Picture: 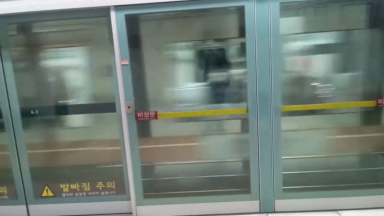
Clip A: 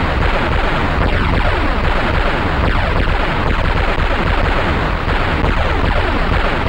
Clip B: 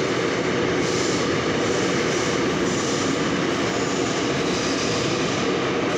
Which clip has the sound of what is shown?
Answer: B